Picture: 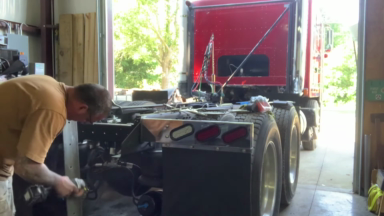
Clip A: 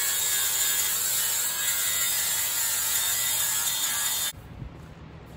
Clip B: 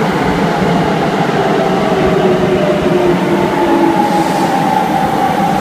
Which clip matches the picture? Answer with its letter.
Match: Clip A